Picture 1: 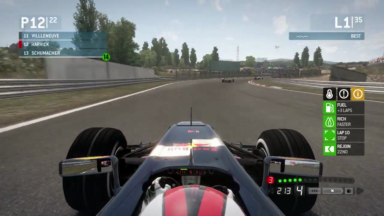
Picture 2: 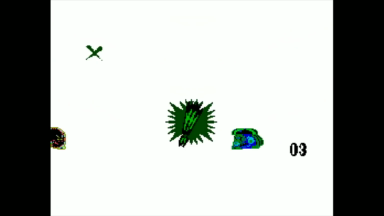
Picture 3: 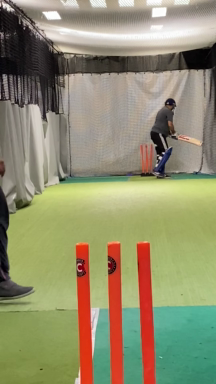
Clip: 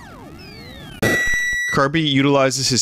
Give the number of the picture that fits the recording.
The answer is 2